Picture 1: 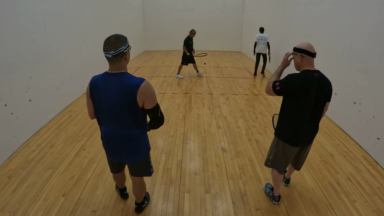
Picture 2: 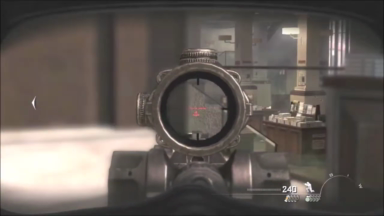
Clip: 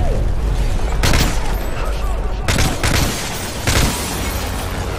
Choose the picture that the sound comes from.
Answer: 2